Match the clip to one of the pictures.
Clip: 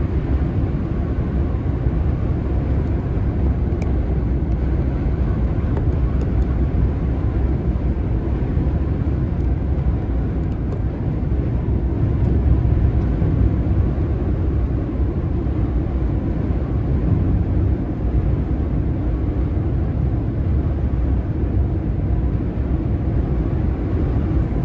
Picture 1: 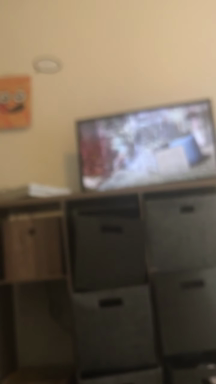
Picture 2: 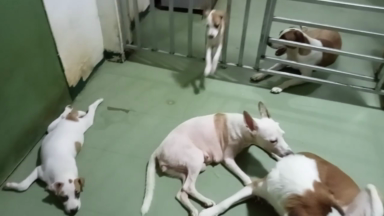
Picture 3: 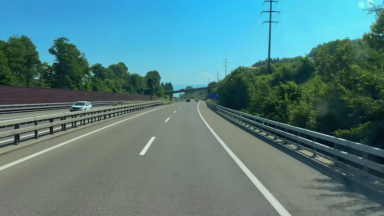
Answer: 3